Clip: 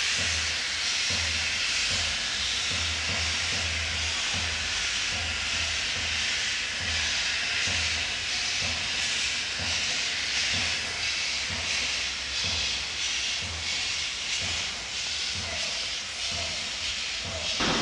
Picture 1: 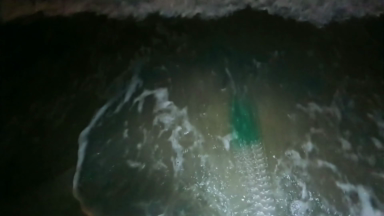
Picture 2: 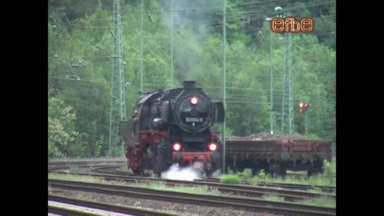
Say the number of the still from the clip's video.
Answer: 2